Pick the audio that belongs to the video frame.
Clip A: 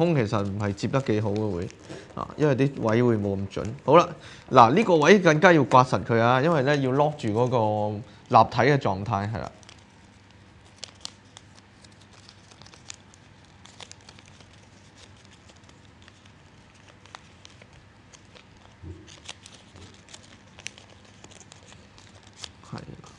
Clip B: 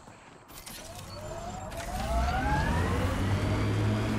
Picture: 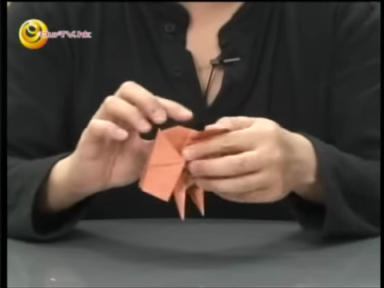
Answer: A